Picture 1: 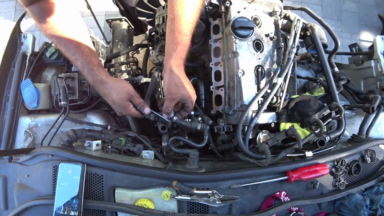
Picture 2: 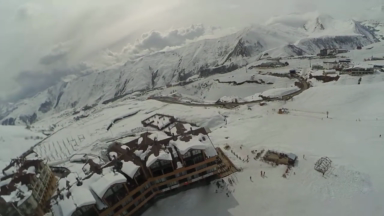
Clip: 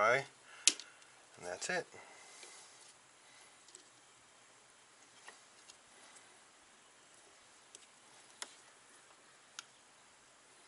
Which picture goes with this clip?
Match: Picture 1